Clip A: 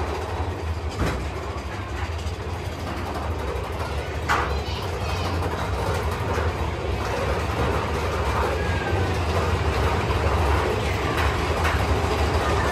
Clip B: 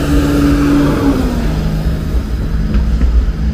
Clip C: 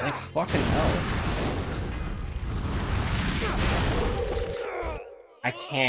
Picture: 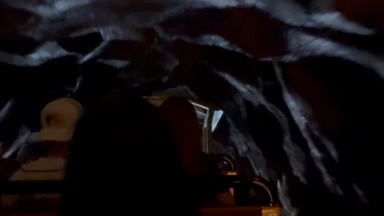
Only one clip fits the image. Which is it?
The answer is A